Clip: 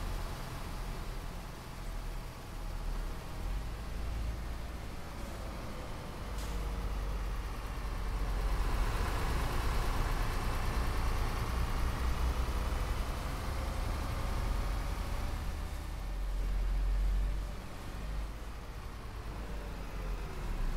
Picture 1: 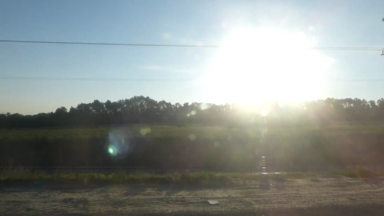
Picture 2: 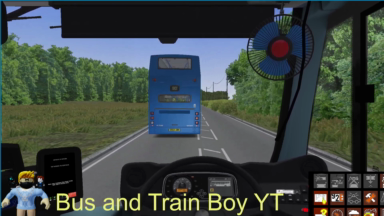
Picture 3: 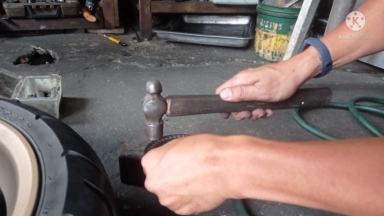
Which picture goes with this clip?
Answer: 2